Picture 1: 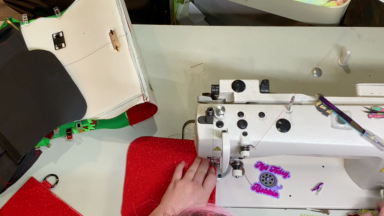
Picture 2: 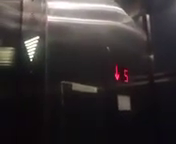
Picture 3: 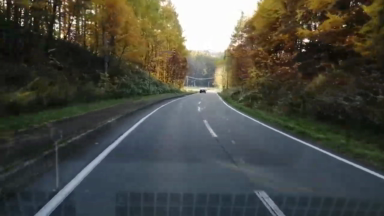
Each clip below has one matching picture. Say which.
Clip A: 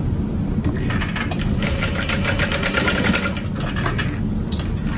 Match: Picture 1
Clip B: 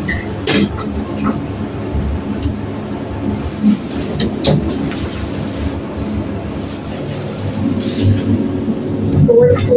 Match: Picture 2